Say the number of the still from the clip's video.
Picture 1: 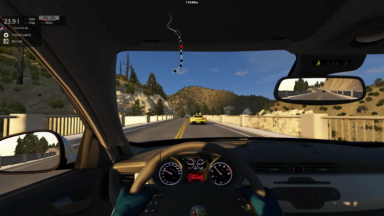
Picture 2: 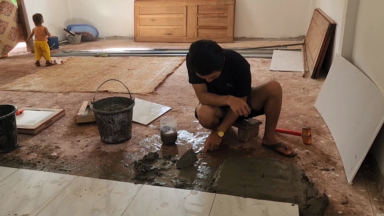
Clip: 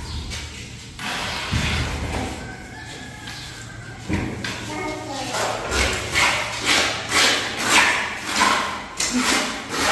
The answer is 2